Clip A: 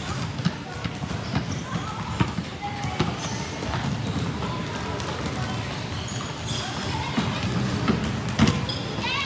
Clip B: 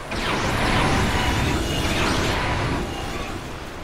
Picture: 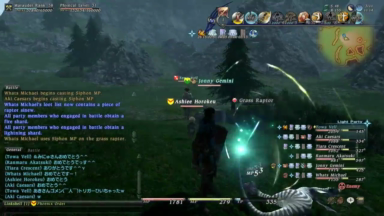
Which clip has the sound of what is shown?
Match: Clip B